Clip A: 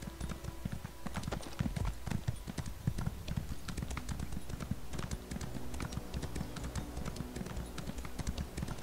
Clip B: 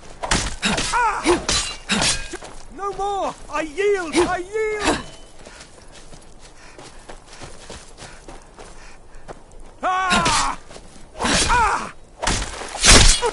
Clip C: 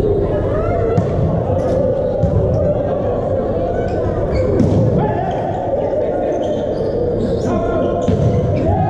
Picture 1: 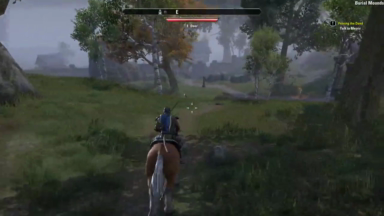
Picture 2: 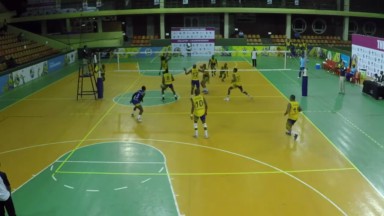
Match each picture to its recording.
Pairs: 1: A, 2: C